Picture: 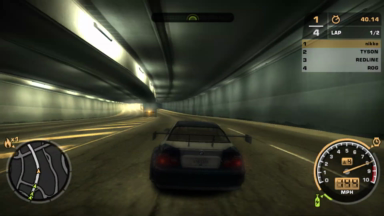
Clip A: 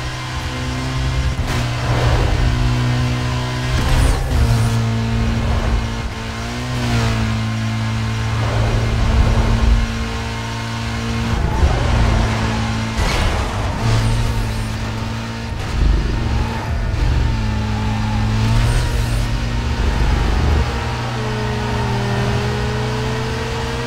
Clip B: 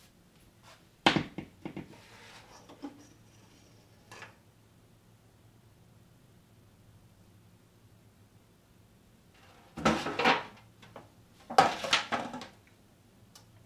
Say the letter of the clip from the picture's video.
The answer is A